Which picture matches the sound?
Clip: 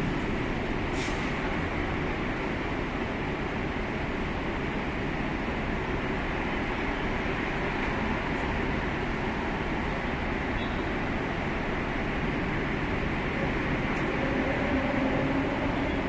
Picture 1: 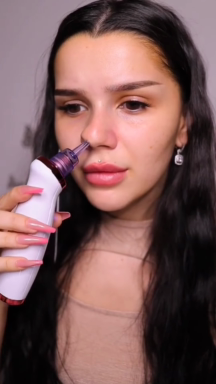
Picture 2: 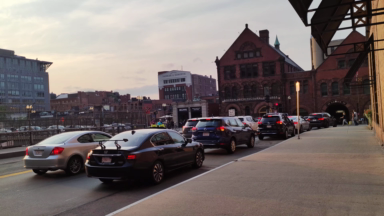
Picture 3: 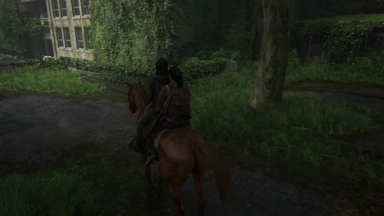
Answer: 2